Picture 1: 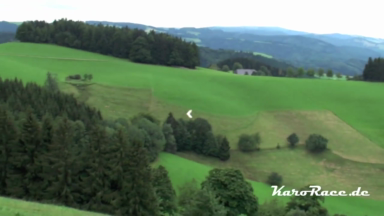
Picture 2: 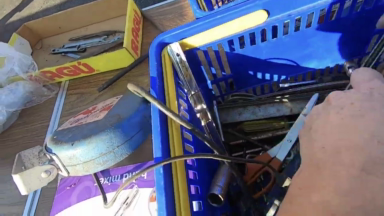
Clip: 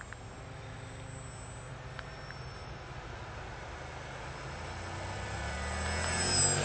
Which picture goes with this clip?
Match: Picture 1